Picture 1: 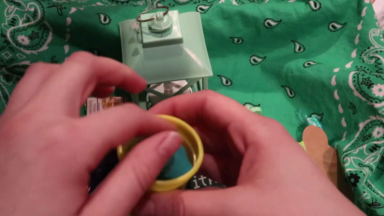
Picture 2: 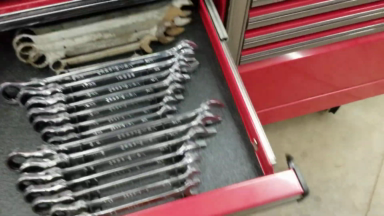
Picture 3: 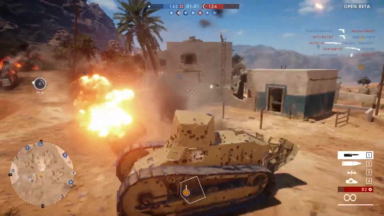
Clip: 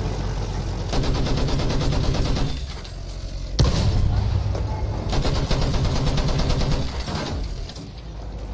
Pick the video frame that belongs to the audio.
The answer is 3